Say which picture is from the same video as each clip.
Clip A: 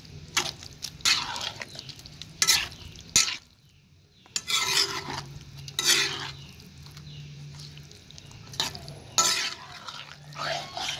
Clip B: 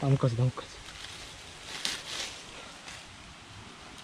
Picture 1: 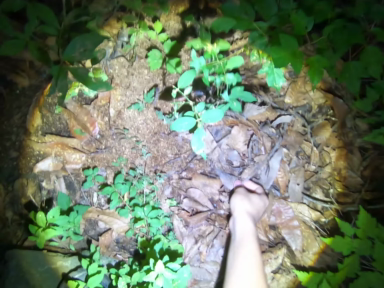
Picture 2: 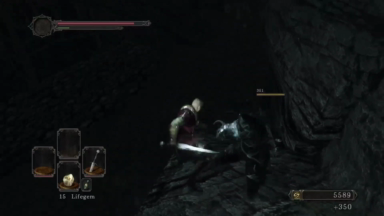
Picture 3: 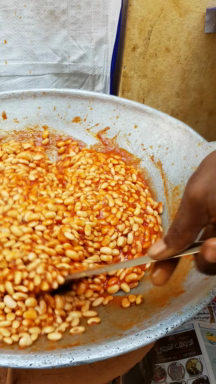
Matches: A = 3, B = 1